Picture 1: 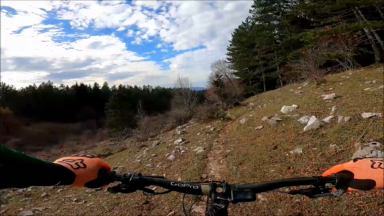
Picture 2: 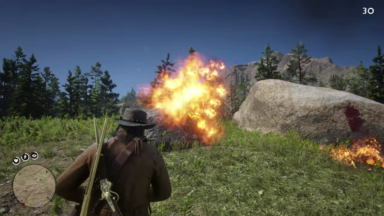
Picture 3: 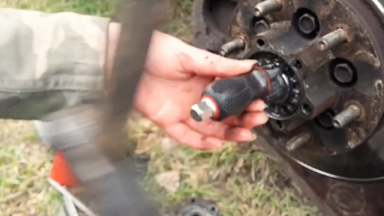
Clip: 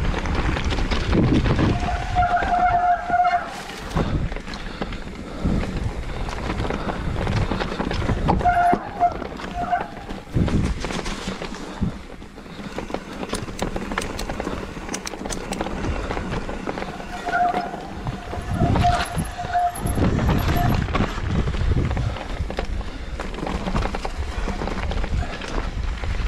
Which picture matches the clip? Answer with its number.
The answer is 1